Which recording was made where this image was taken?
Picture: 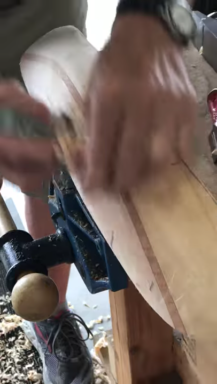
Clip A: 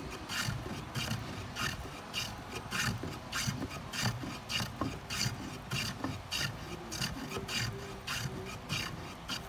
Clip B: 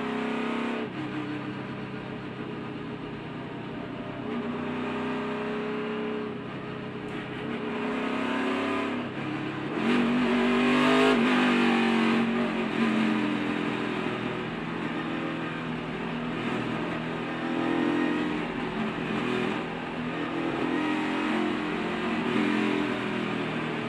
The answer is A